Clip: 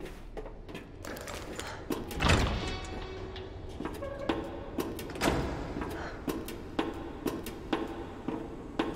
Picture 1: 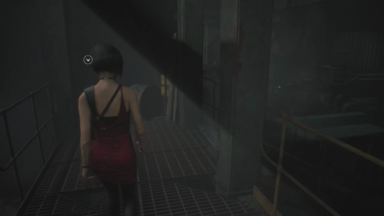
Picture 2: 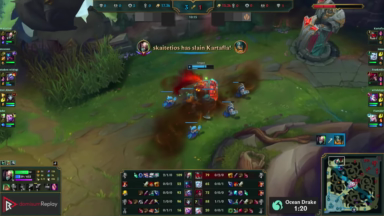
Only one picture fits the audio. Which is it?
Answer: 1